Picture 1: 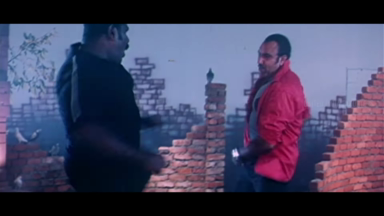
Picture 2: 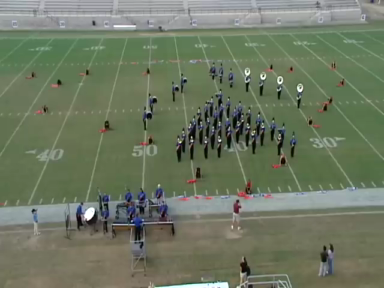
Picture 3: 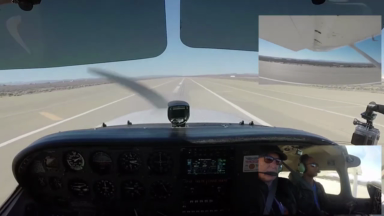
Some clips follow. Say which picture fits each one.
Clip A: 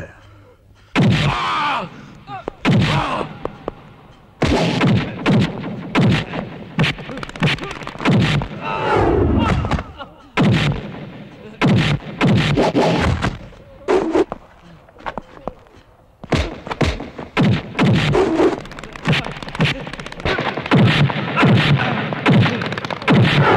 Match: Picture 1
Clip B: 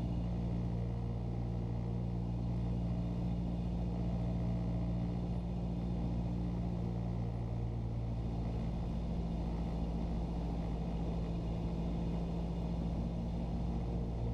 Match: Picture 3